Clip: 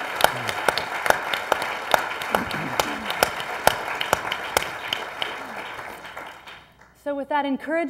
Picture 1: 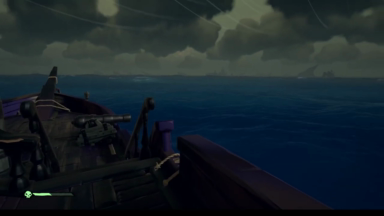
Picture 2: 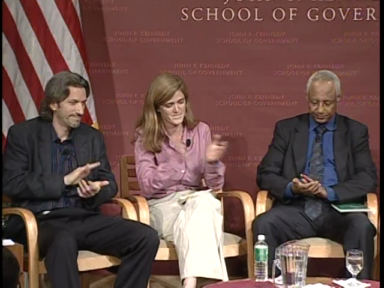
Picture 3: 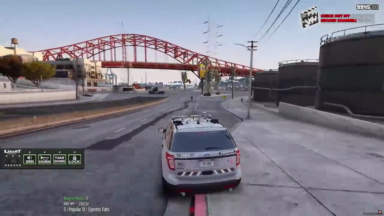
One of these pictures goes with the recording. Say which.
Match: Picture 2